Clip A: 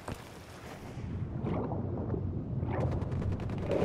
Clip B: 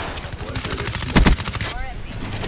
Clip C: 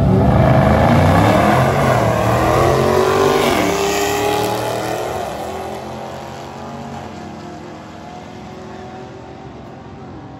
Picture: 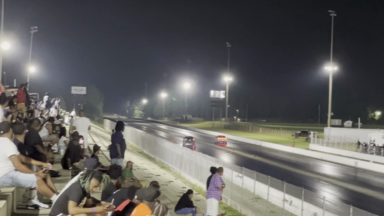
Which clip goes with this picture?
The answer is C